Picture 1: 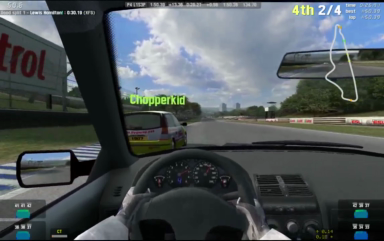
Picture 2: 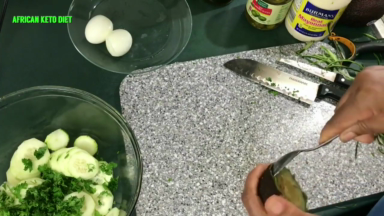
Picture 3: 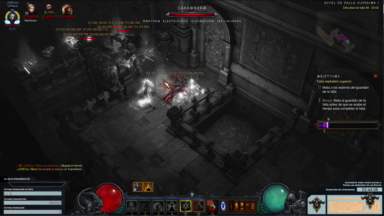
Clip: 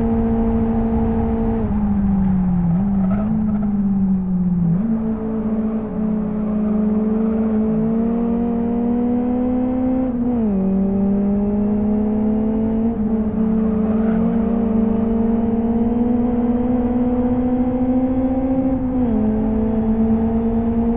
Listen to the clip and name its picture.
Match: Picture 1